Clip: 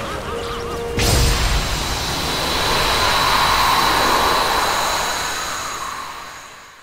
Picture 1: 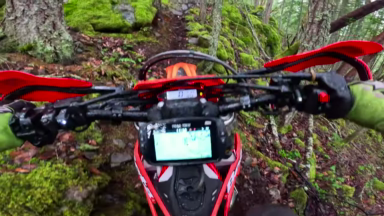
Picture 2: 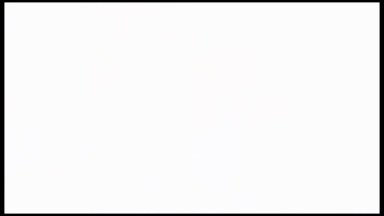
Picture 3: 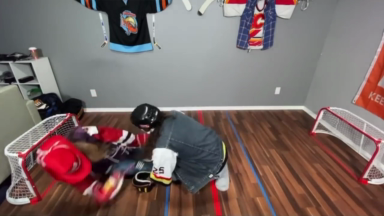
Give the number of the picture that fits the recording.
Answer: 2